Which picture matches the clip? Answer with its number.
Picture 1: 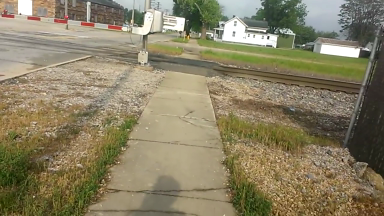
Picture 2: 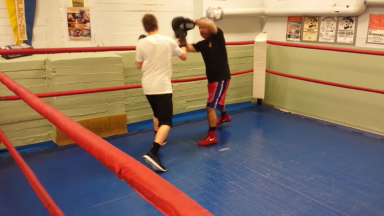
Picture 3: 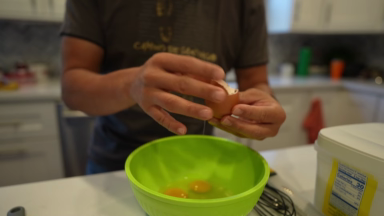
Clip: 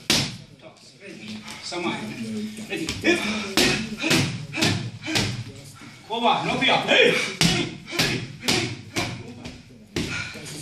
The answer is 2